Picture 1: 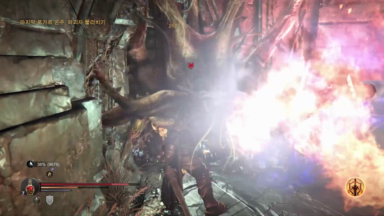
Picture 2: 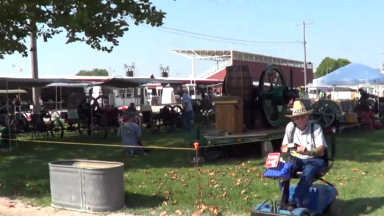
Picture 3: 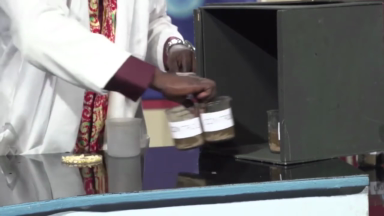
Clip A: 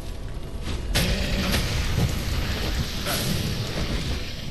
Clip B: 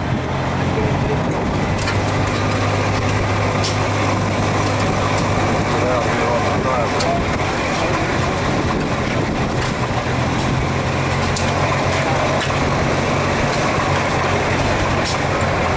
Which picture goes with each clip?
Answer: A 1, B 2